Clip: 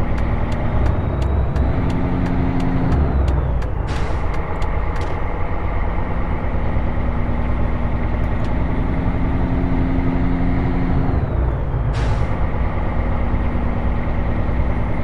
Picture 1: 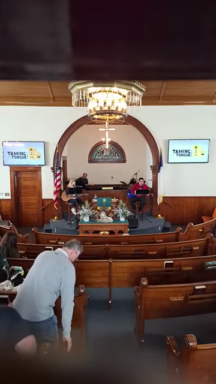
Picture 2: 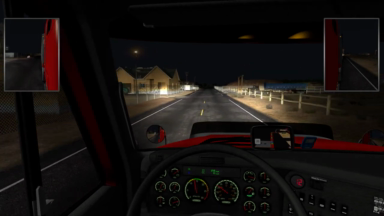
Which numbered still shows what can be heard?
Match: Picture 2